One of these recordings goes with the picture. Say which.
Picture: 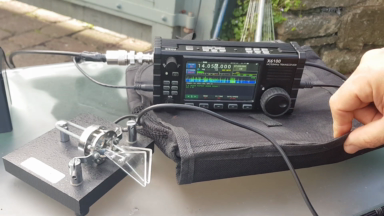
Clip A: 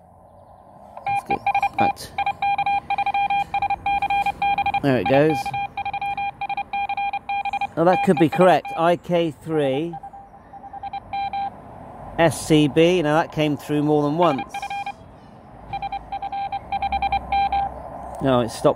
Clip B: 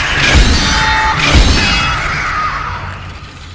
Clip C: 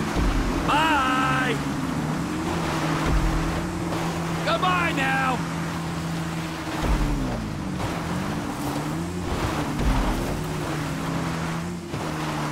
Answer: A